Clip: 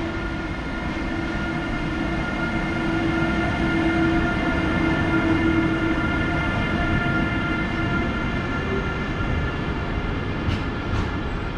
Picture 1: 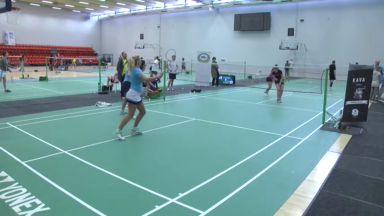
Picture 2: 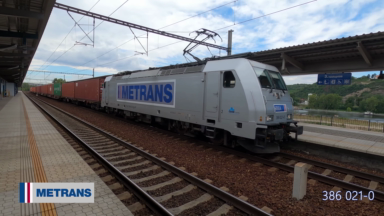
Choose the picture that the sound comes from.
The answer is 2